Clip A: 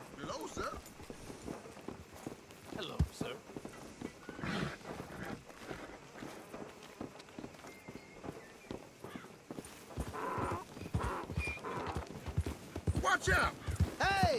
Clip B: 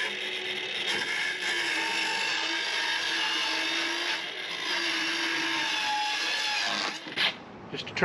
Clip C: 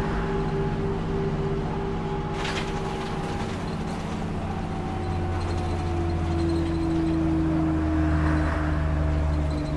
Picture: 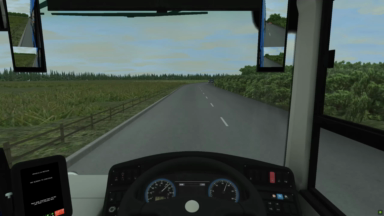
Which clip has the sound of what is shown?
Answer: C